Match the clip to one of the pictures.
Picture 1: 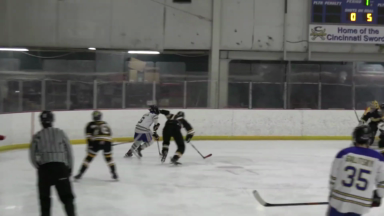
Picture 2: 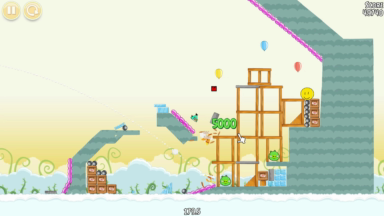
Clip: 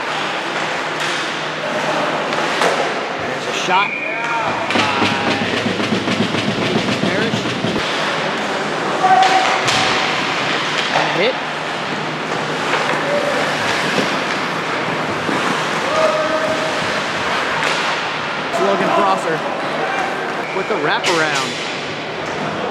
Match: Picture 1